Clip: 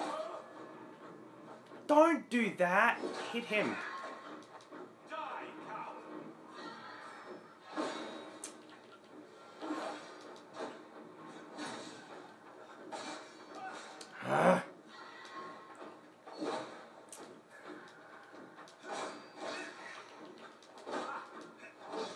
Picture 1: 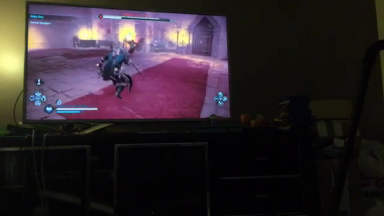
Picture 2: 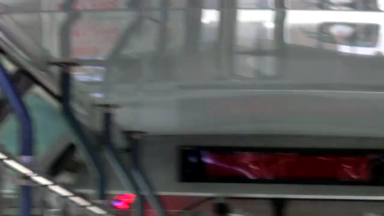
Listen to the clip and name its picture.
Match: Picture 1